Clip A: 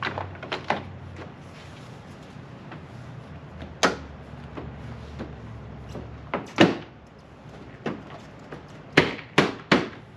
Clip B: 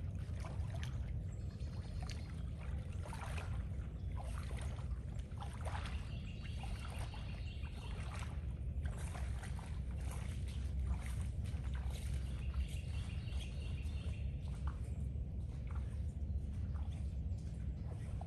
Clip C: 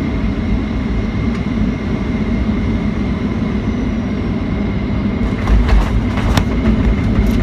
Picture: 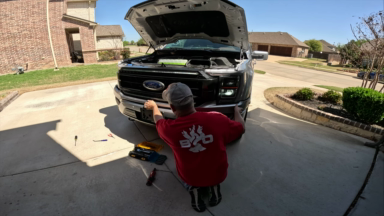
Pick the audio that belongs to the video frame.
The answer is A